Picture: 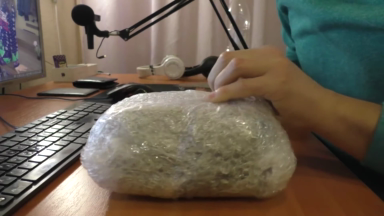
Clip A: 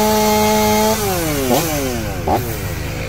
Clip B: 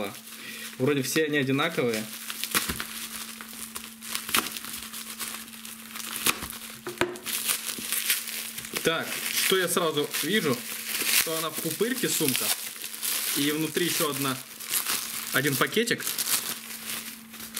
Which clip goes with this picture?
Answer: B